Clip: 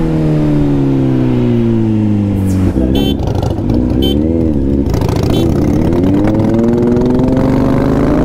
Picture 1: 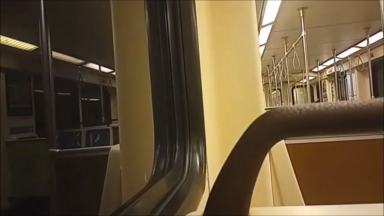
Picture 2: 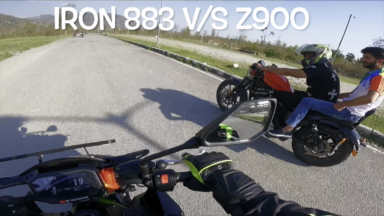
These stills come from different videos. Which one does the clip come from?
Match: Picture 2